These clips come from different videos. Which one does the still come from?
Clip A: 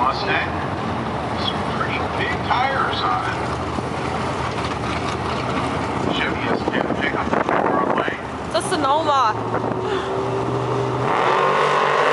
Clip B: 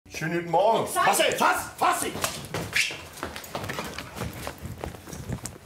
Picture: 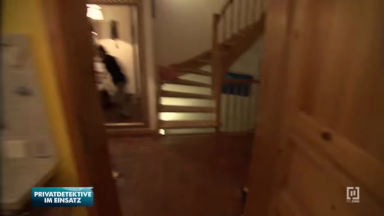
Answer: B